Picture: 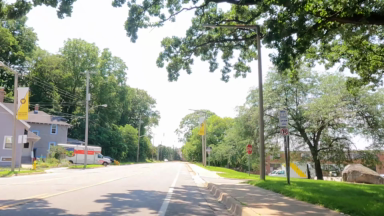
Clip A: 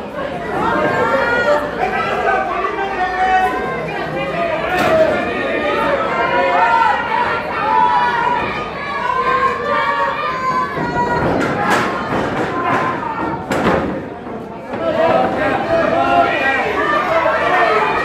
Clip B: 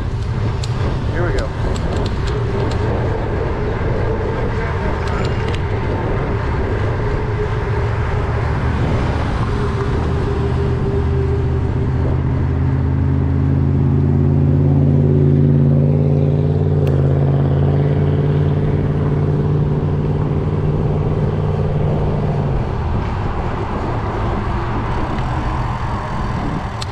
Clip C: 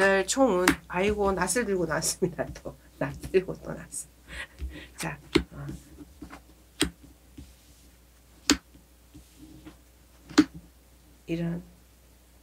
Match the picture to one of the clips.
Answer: B